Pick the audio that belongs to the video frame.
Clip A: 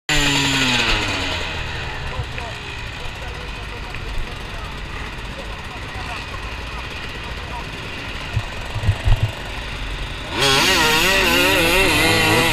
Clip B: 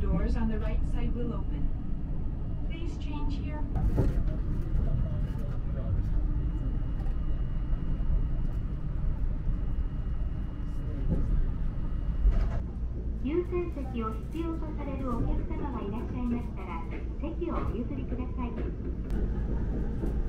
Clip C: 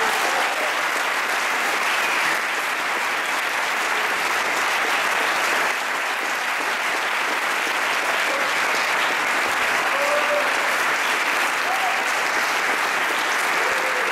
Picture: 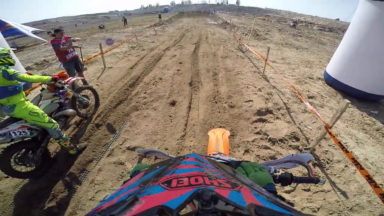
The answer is A